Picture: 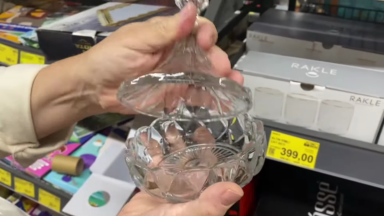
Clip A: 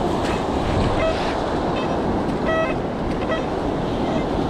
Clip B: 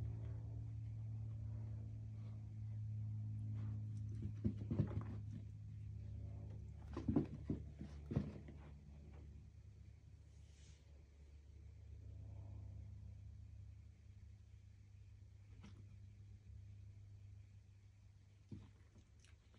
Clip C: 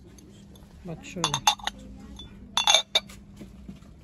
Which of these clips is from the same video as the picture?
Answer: C